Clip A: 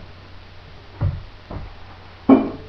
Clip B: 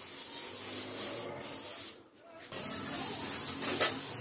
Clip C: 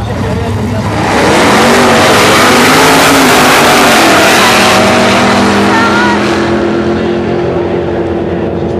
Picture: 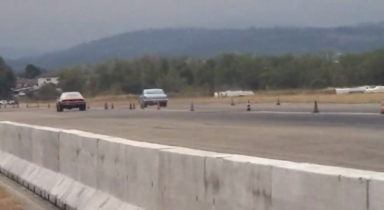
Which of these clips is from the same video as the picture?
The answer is C